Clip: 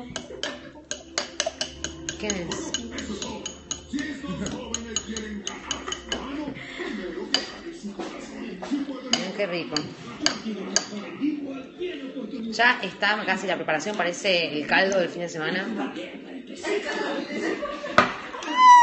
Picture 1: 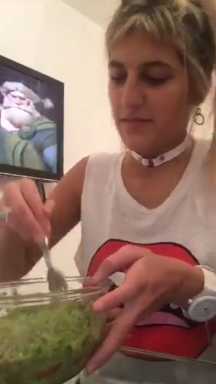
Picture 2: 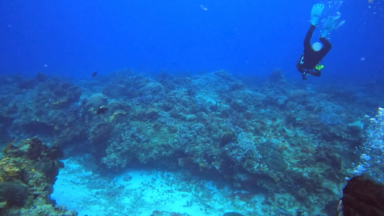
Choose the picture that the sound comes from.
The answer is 1